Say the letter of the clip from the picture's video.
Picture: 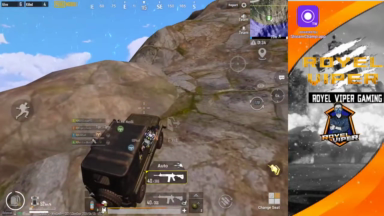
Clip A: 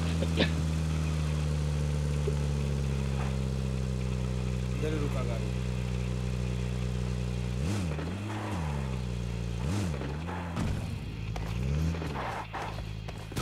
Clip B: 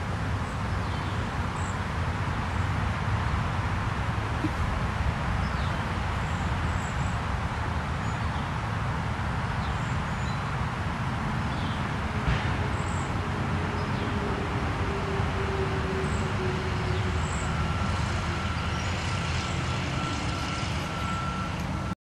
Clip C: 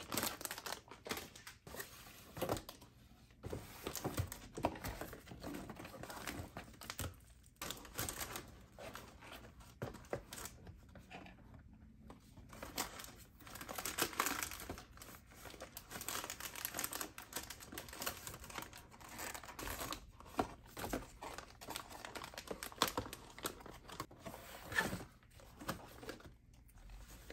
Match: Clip A